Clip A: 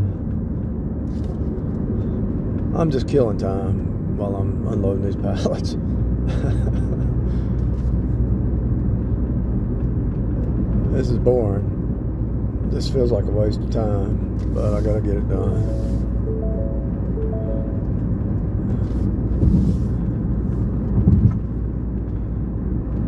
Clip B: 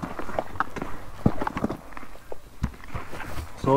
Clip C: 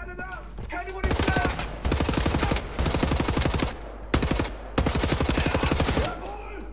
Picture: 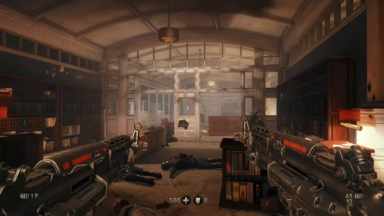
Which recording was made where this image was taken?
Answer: C